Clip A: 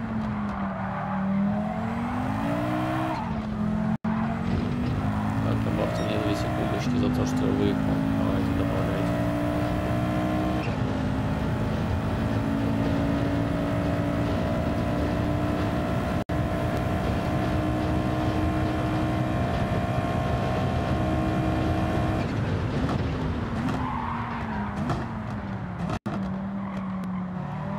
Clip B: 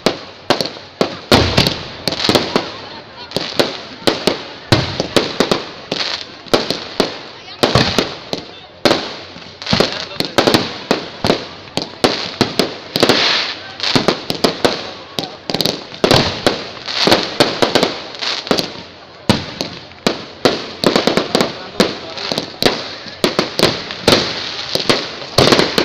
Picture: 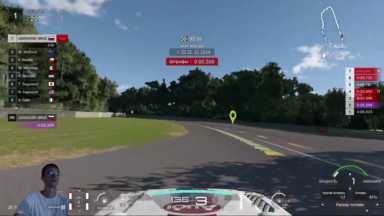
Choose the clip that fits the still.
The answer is A